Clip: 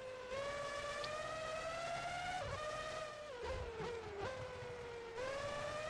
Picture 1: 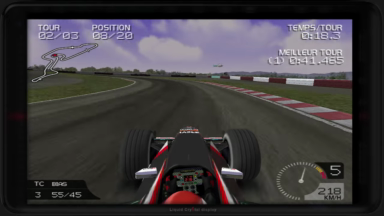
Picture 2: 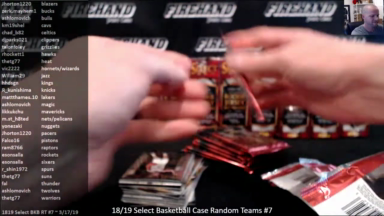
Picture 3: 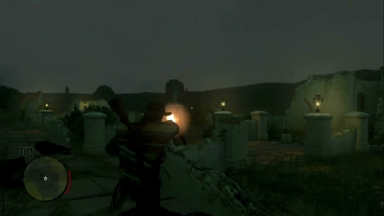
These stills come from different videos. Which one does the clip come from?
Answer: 1